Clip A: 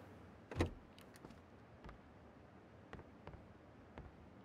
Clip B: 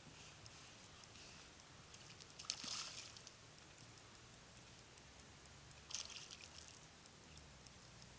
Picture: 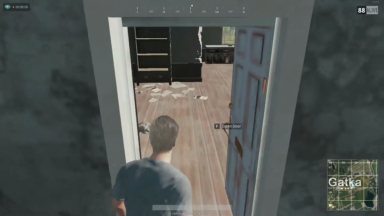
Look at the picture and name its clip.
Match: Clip A